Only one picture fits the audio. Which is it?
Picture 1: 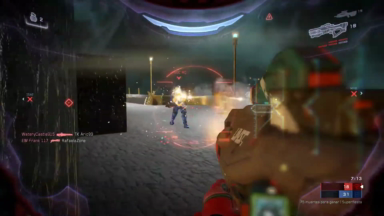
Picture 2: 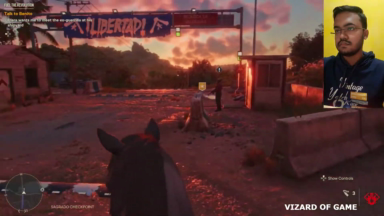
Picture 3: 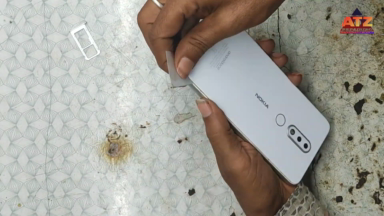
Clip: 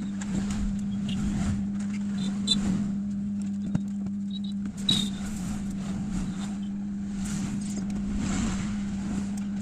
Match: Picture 3